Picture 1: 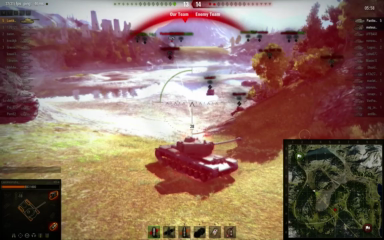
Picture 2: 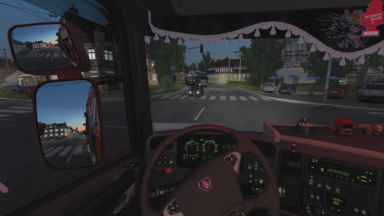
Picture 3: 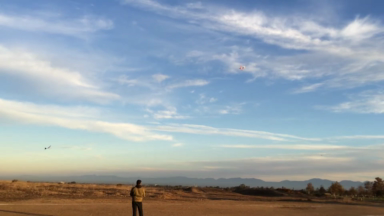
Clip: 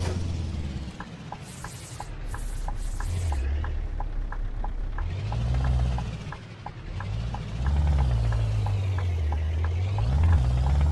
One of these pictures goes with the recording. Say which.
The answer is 2